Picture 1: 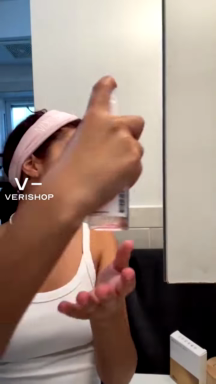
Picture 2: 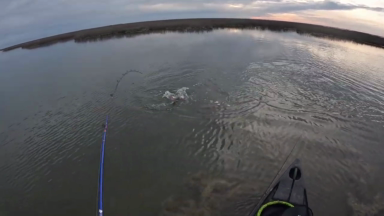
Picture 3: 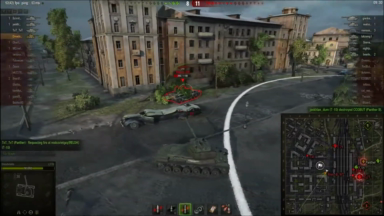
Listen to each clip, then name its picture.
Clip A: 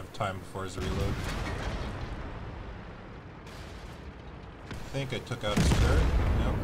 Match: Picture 3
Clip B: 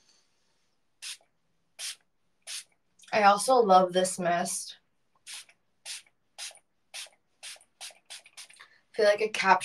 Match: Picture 1